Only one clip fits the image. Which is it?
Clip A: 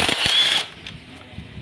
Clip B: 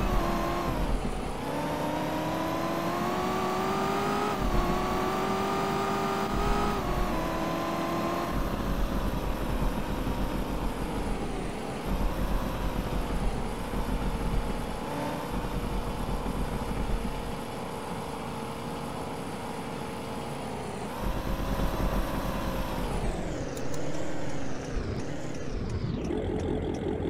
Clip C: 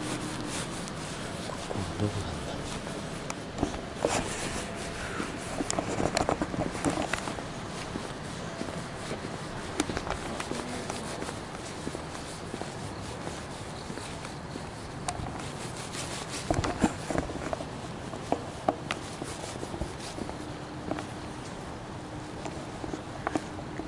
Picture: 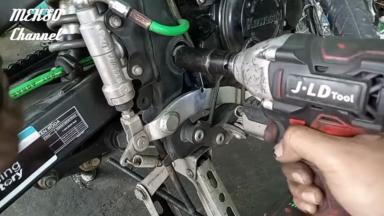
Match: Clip A